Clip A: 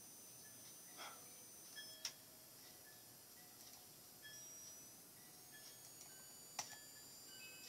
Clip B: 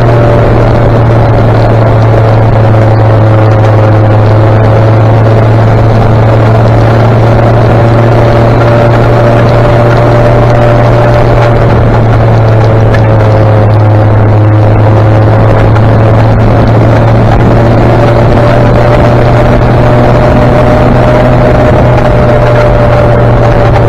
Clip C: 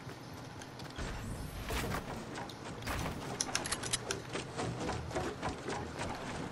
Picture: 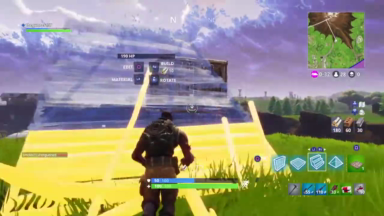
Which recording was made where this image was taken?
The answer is C